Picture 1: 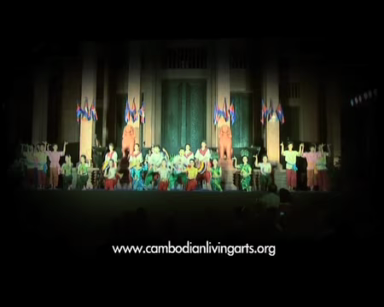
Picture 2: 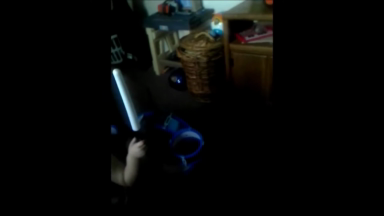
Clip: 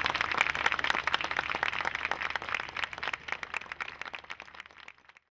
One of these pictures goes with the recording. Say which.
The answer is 1